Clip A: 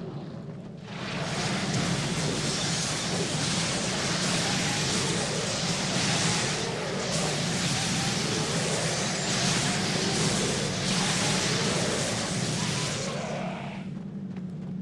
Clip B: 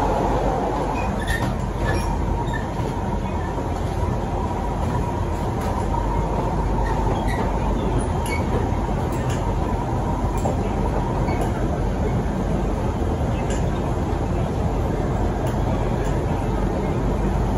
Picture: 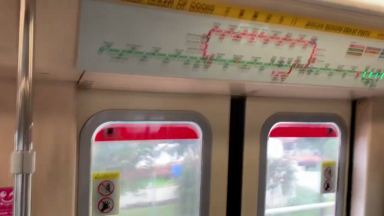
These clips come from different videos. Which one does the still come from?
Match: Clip B